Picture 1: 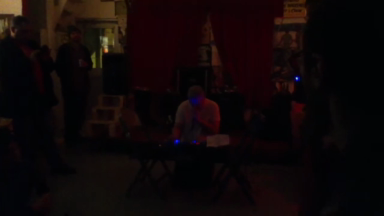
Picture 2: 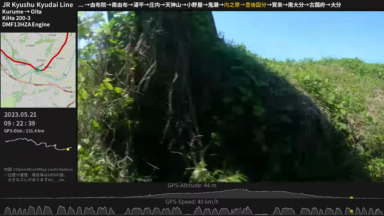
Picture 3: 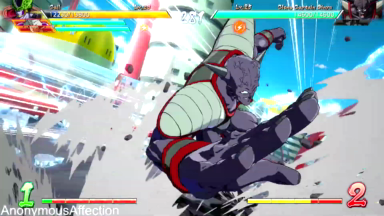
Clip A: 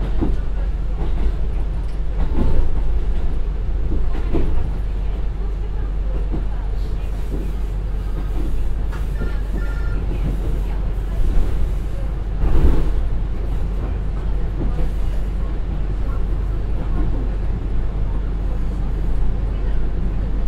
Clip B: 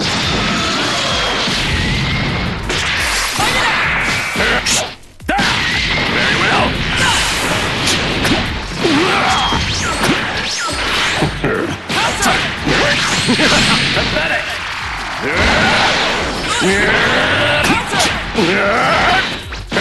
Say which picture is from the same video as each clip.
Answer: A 2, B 3